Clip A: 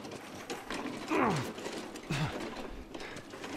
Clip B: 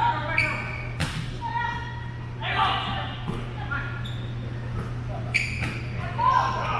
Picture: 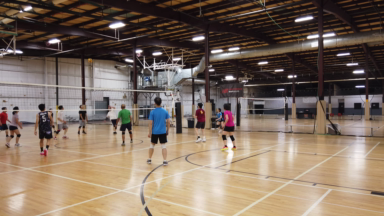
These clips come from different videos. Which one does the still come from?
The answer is B